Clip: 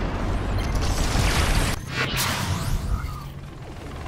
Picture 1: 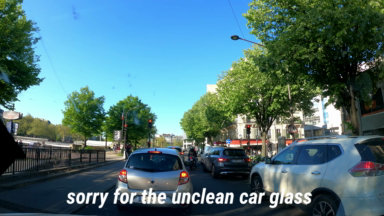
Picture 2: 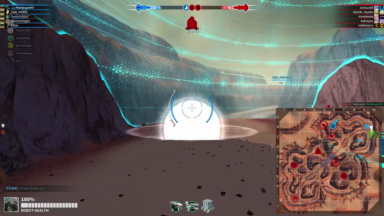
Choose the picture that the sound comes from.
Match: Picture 2